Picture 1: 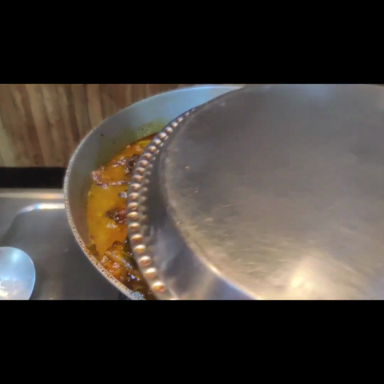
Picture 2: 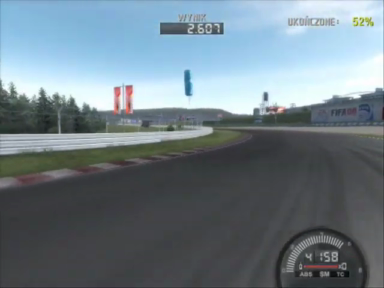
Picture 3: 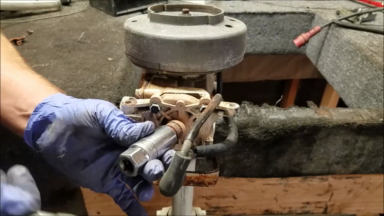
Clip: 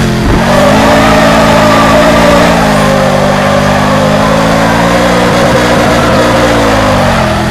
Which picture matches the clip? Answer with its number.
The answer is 2